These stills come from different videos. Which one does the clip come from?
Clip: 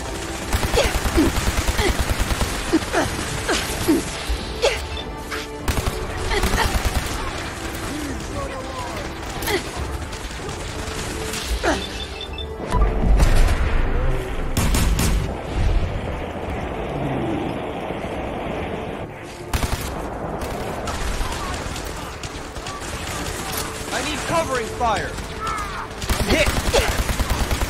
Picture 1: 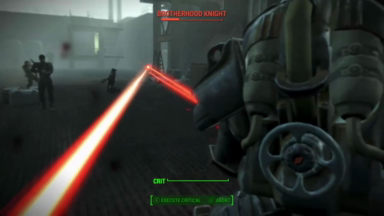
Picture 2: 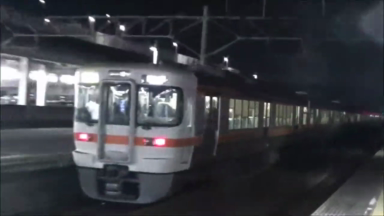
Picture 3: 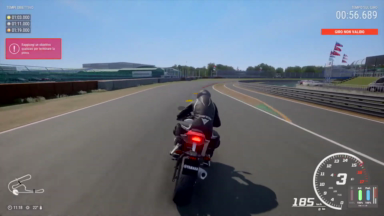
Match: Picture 1